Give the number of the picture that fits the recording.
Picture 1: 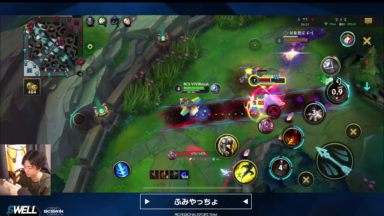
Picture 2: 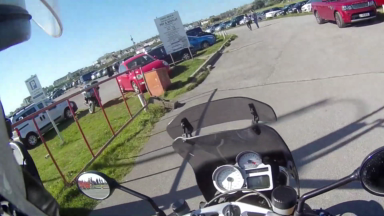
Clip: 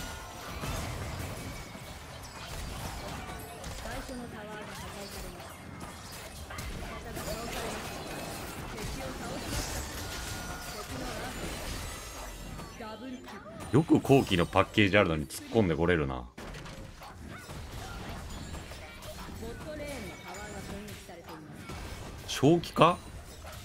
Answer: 1